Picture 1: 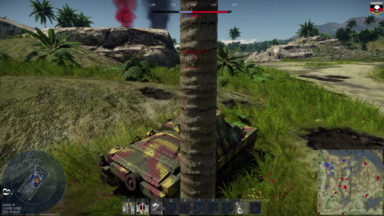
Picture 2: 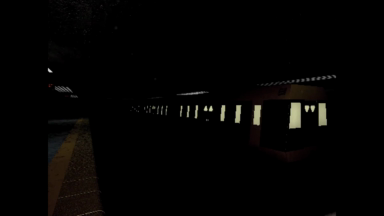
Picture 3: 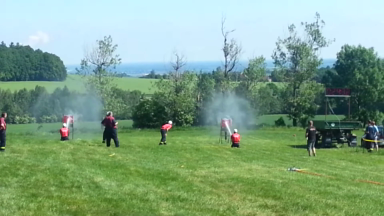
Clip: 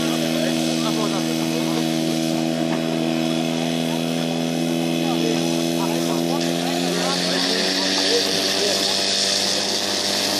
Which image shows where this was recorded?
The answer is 3